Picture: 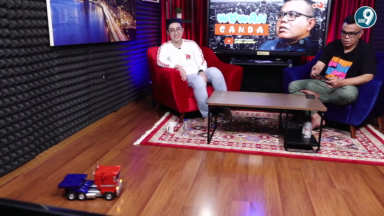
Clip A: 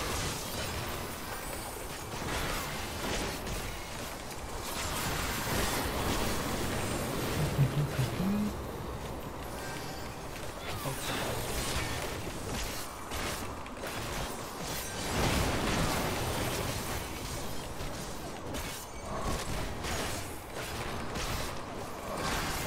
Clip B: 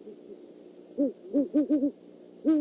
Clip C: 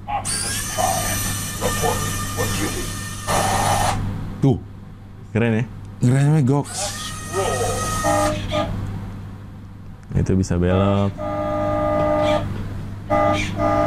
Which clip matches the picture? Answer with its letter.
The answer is C